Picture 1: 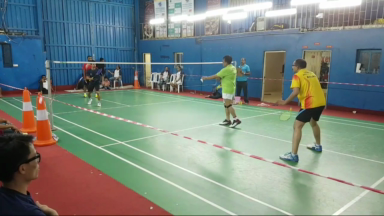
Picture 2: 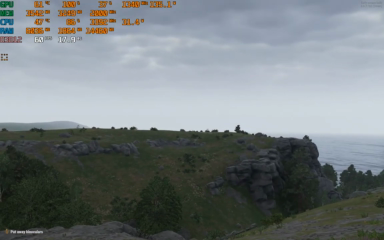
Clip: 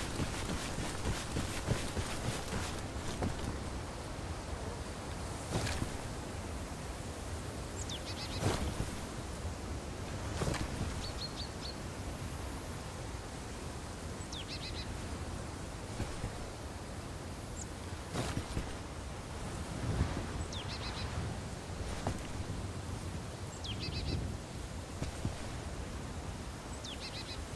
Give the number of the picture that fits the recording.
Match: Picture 2